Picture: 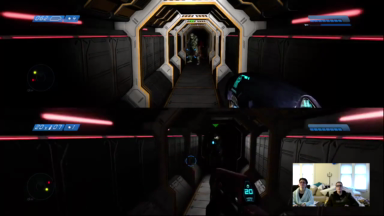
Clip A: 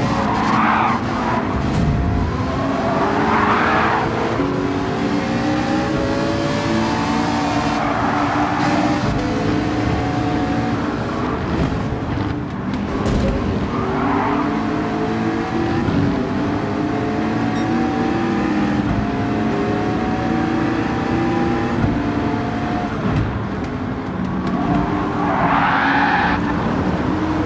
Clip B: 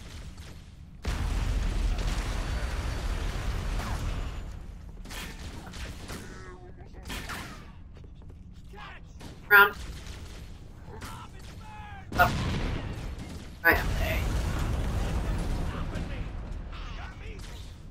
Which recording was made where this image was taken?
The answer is B